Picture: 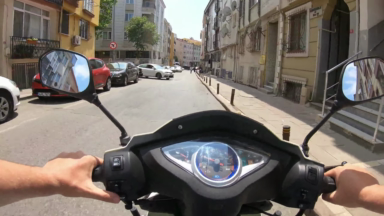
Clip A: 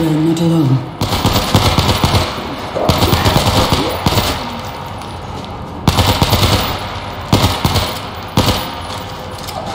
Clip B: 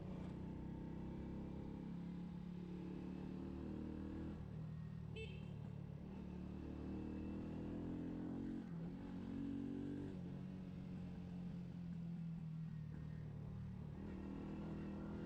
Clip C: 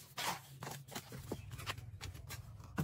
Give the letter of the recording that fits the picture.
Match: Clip B